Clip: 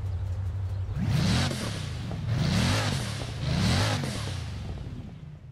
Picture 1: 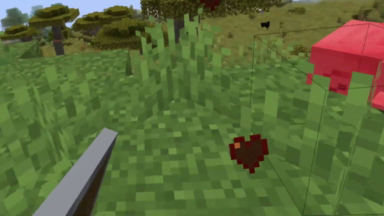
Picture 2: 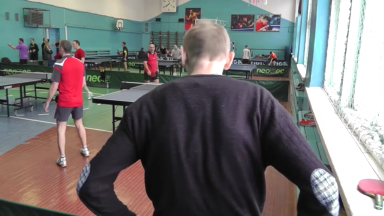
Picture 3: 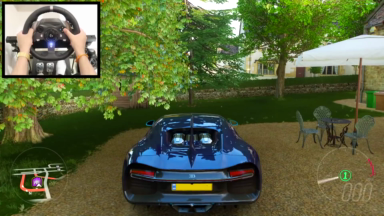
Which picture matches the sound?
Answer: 3